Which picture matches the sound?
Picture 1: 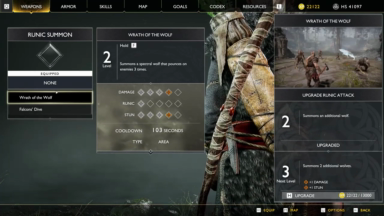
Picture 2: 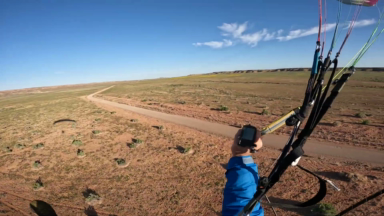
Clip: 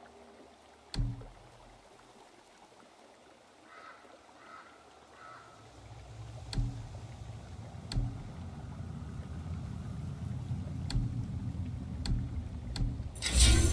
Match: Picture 1